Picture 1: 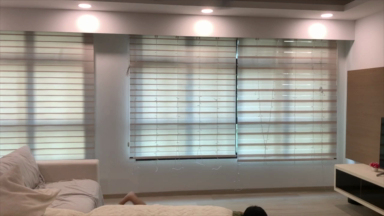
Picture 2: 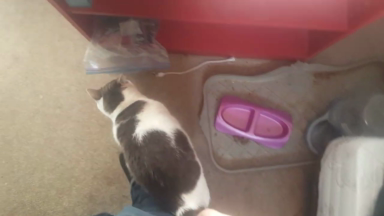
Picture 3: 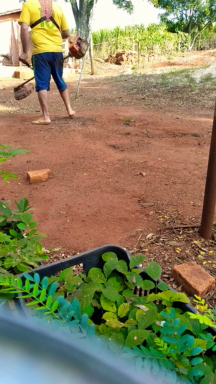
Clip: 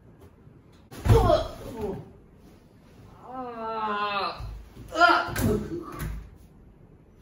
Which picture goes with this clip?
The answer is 1